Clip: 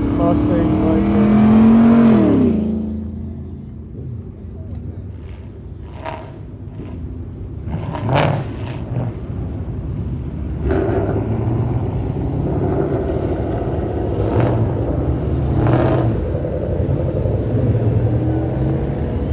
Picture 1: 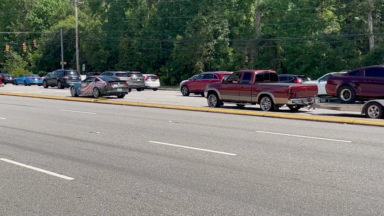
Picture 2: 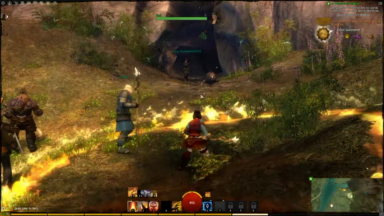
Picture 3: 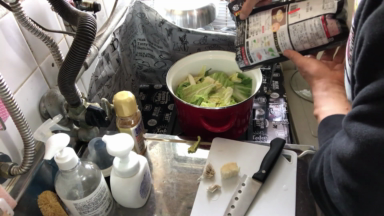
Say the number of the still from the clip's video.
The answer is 1